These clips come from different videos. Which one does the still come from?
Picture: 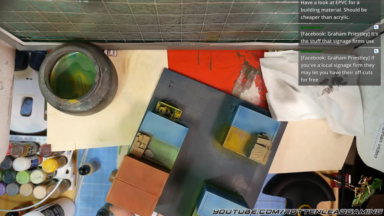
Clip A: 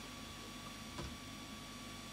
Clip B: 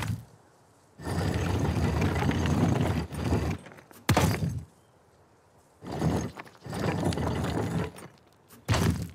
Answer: A